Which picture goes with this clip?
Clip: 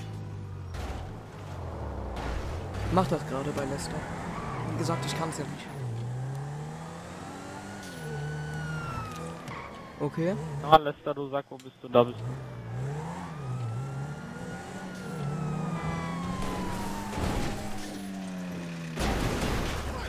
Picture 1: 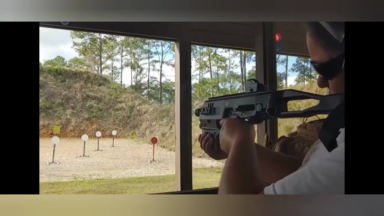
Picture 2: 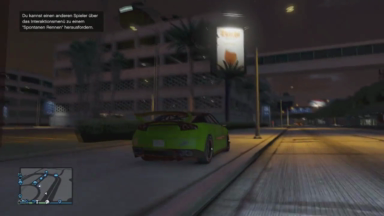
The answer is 2